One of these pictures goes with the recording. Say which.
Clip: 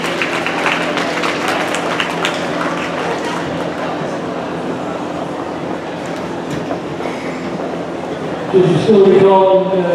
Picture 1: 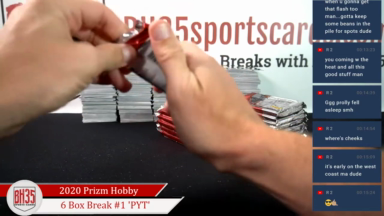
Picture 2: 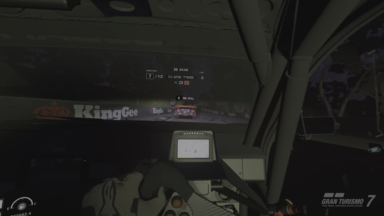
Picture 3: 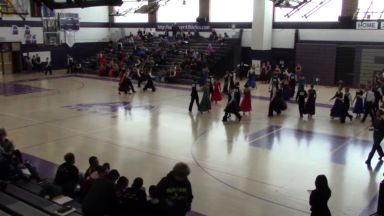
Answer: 3